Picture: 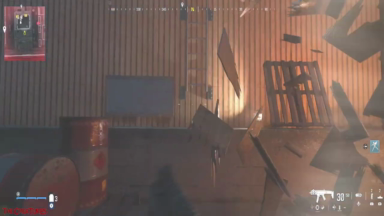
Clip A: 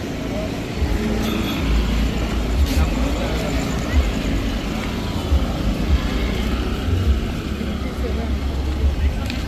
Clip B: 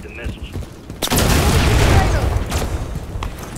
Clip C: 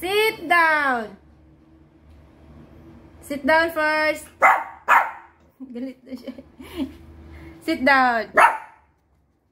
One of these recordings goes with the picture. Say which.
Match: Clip B